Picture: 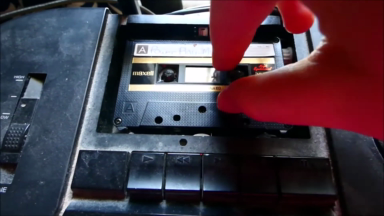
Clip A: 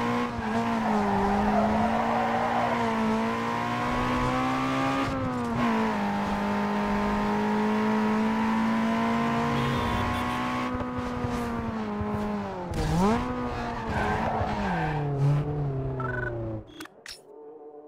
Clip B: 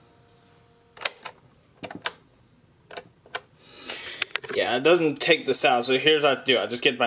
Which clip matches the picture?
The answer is B